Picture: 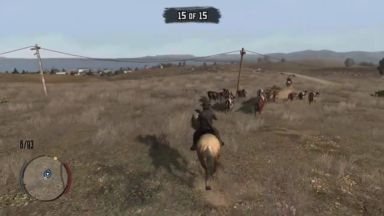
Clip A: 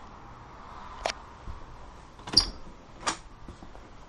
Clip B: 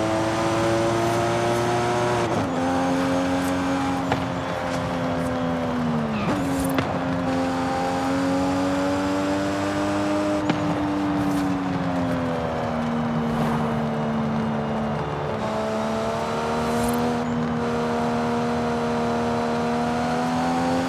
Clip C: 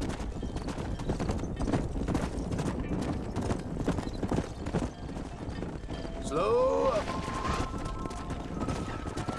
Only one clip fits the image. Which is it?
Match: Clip C